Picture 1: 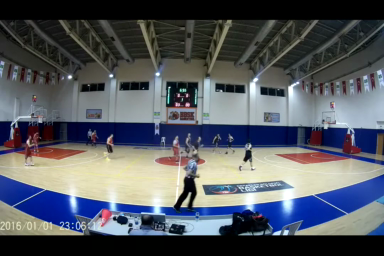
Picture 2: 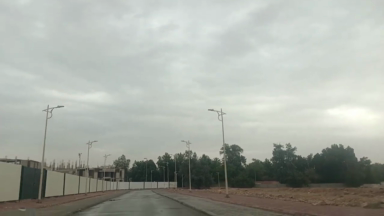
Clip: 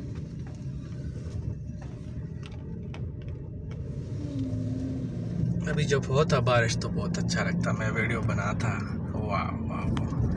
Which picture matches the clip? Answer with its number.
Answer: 2